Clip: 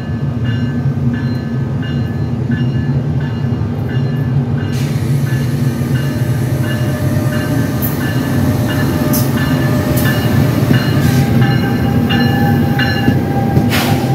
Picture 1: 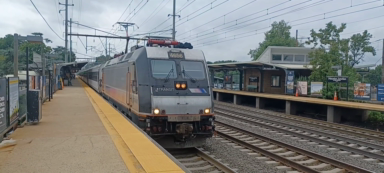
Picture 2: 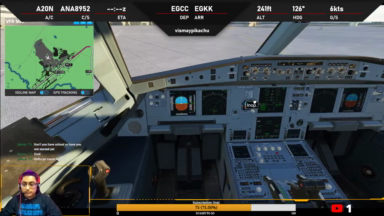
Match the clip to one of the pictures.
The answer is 1